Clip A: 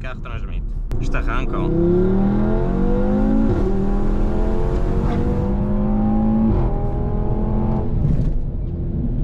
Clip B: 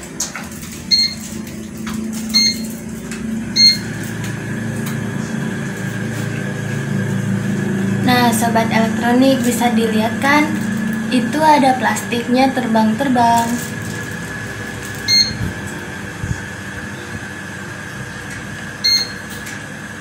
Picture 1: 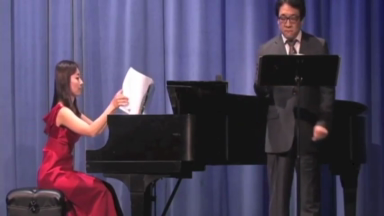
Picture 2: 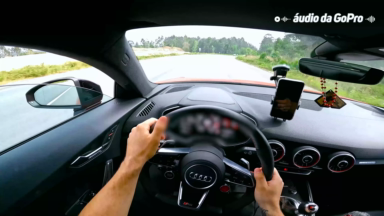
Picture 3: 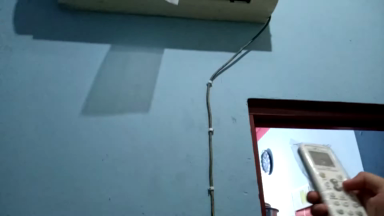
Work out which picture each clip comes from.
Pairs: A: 2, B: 3